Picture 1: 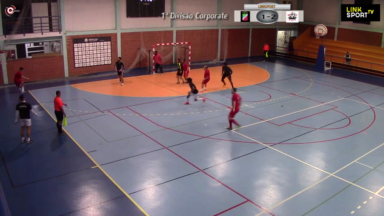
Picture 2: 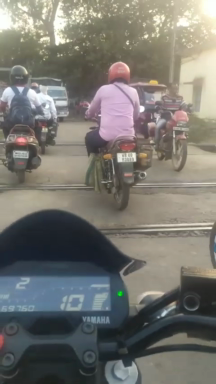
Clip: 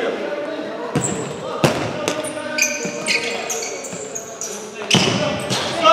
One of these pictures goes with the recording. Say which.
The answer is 1